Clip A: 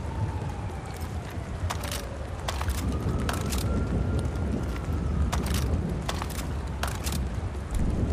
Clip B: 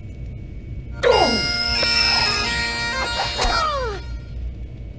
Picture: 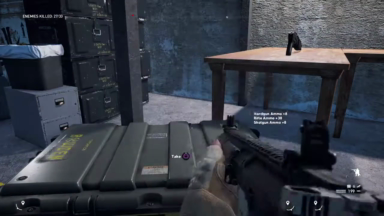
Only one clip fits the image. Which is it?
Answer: A